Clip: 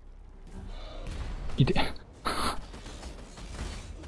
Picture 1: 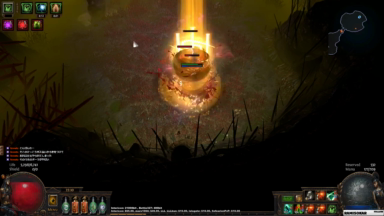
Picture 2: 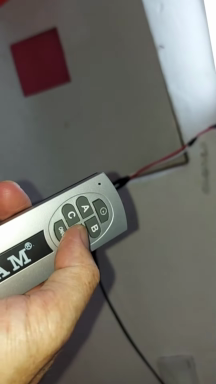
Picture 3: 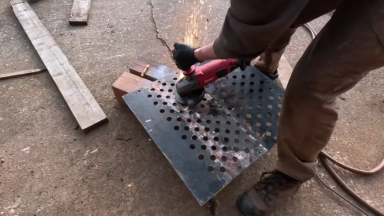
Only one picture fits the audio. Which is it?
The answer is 1